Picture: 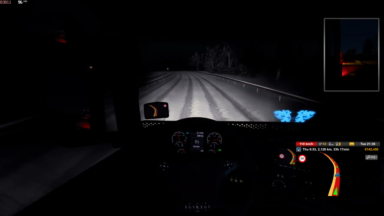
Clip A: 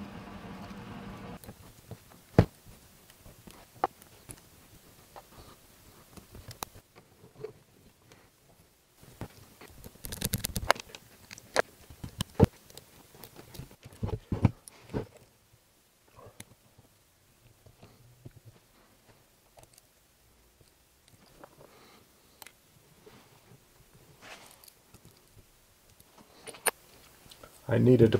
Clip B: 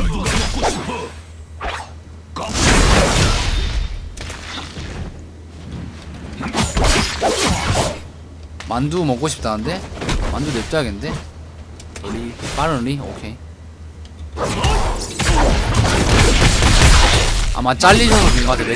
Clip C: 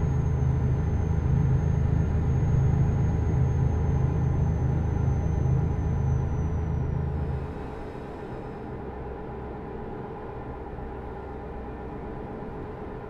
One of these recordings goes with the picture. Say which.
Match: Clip C